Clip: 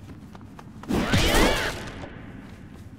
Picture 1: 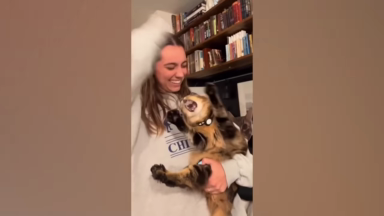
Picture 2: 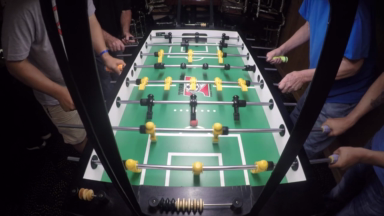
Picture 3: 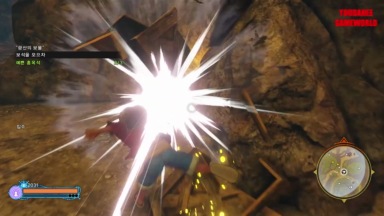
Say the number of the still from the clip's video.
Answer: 3